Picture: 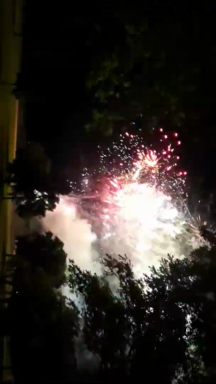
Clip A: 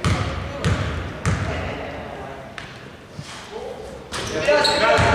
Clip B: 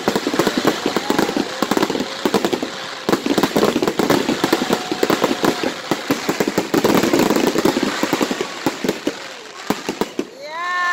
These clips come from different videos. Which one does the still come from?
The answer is B